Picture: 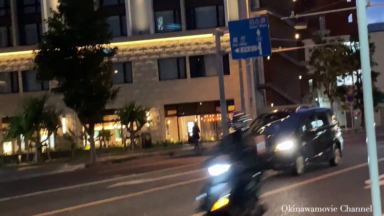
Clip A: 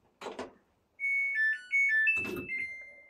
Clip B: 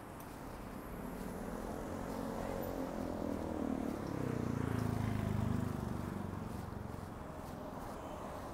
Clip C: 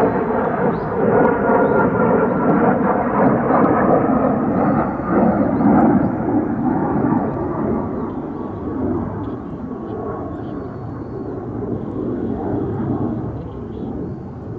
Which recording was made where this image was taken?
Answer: B